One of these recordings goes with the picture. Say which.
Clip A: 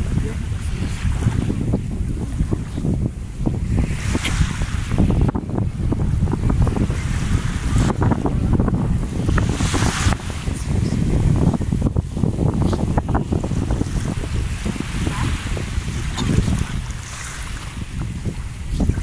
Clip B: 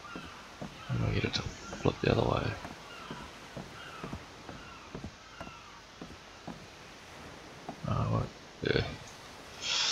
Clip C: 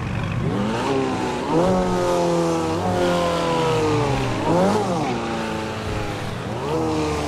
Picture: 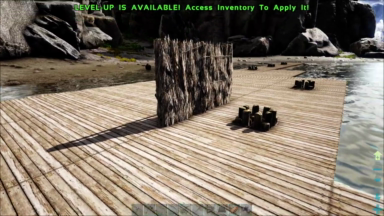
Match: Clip B